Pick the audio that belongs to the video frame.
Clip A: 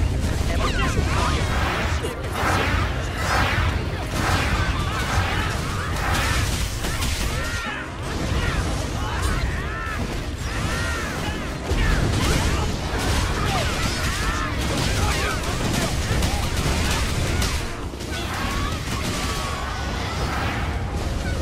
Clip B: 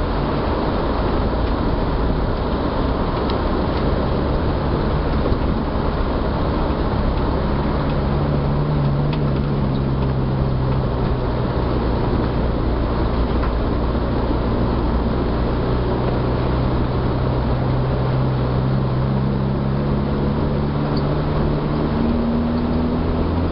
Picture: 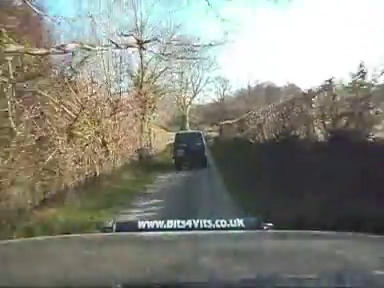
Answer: B